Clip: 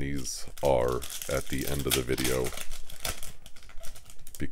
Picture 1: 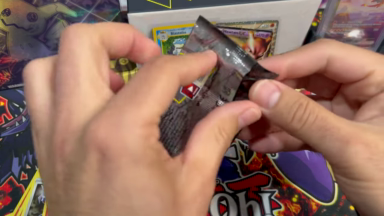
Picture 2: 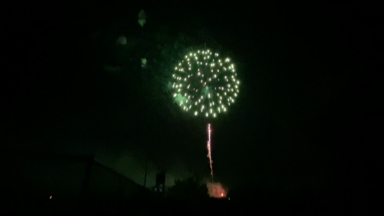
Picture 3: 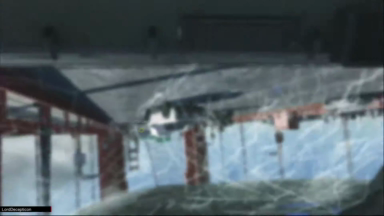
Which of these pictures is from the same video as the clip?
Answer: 1